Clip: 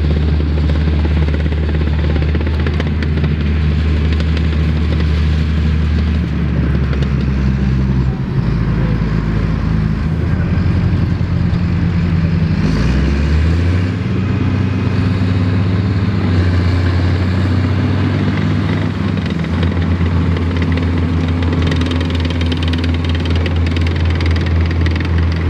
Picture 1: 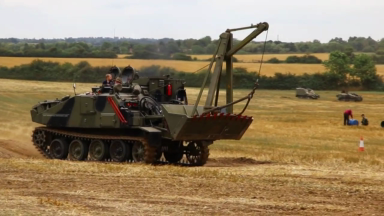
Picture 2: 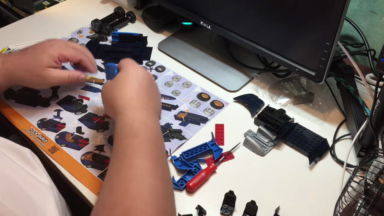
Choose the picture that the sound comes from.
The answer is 1